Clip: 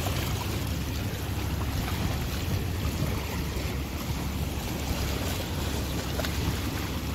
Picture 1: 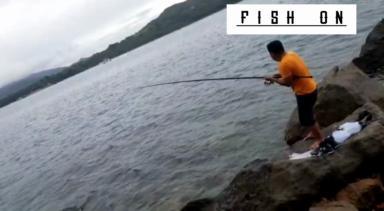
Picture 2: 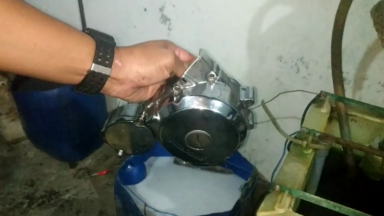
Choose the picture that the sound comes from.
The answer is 1